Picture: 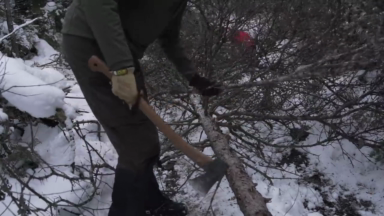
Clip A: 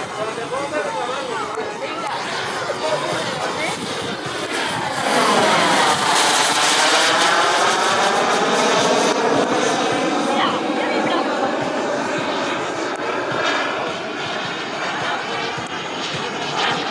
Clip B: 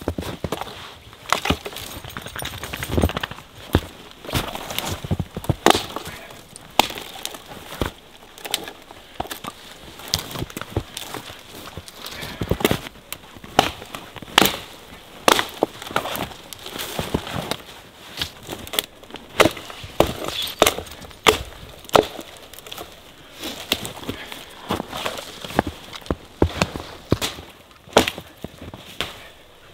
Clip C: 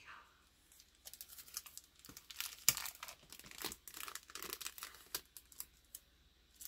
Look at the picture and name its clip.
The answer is B